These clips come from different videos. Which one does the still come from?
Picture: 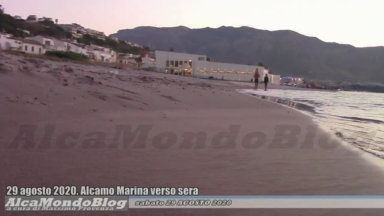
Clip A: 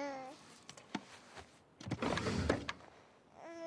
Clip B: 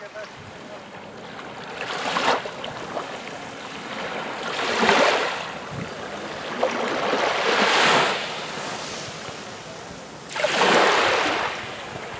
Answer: B